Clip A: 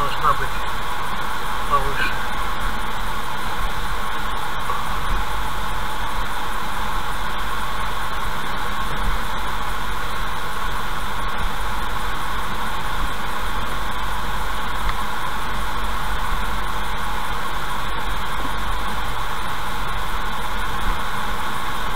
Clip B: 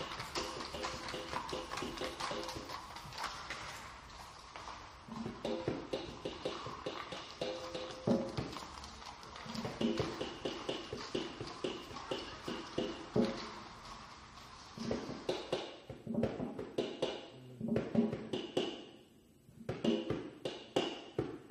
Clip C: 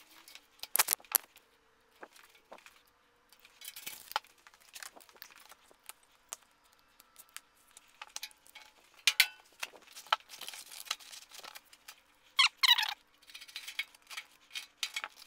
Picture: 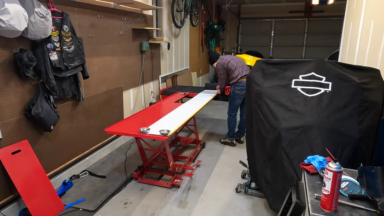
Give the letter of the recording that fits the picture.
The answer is C